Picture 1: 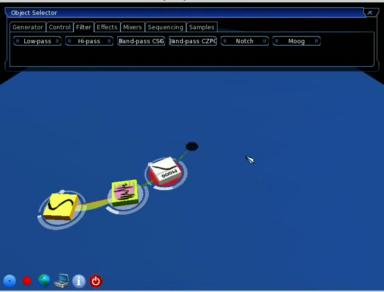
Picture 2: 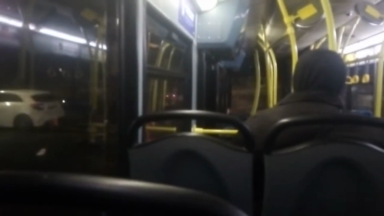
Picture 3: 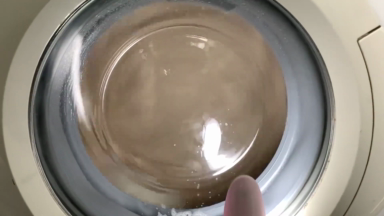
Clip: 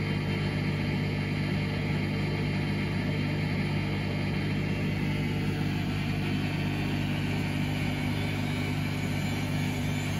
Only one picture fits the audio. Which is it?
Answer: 3